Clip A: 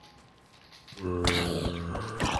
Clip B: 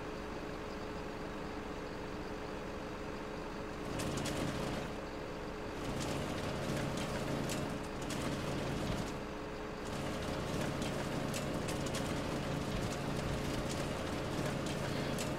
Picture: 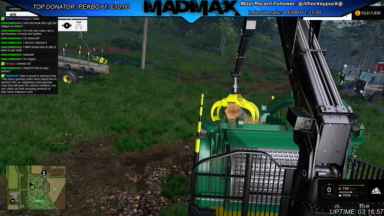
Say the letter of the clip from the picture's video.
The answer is B